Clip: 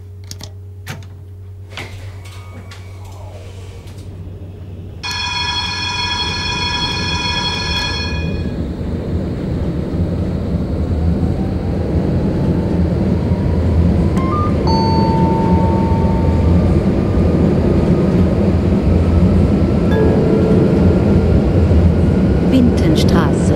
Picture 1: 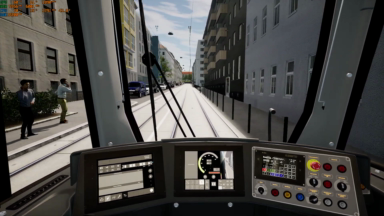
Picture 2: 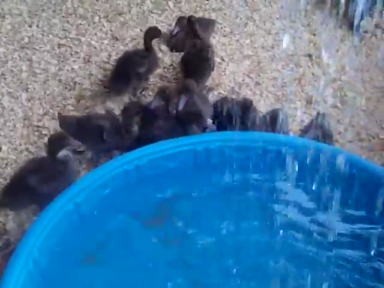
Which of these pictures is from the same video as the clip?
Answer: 1